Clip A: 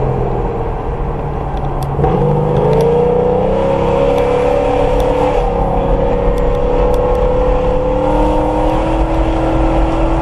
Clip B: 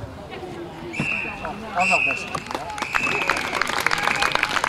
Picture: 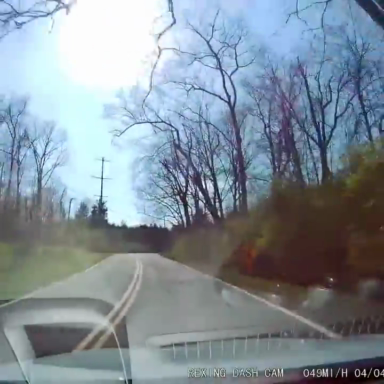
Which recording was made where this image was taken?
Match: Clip A